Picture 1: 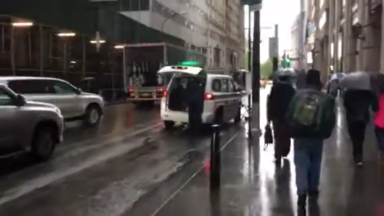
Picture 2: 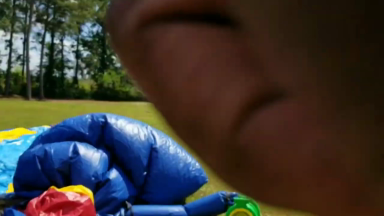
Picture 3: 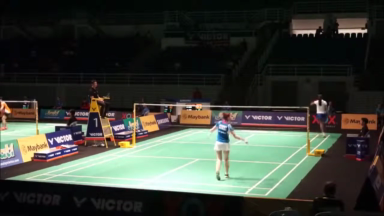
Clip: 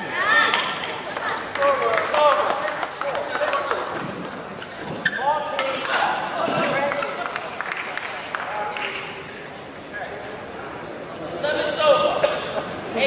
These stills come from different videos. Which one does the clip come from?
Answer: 3